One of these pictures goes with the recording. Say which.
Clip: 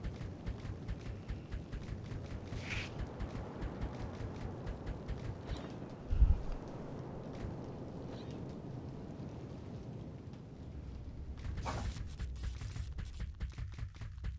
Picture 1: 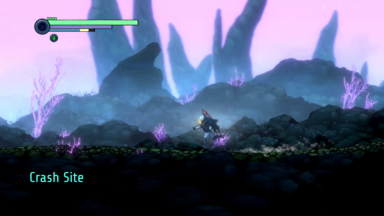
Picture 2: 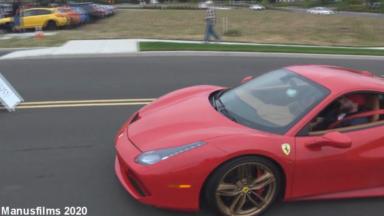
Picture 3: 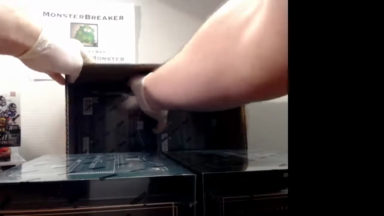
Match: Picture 1